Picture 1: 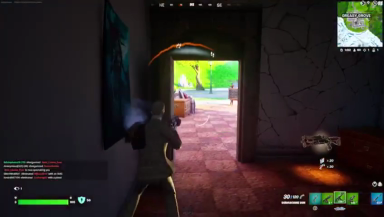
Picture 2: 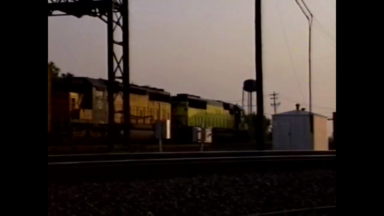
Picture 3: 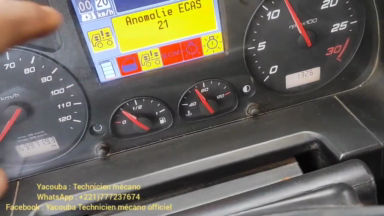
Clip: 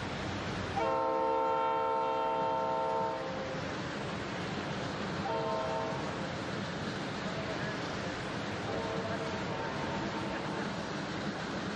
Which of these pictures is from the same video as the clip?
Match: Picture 2